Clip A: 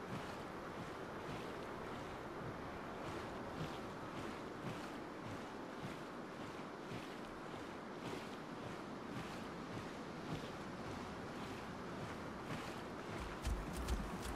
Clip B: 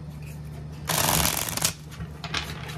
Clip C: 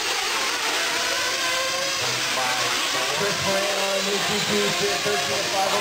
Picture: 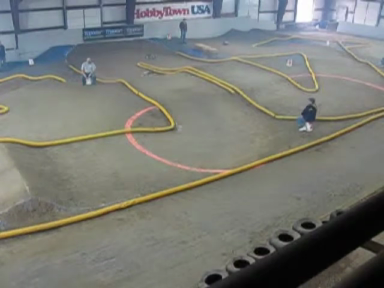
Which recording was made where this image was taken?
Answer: C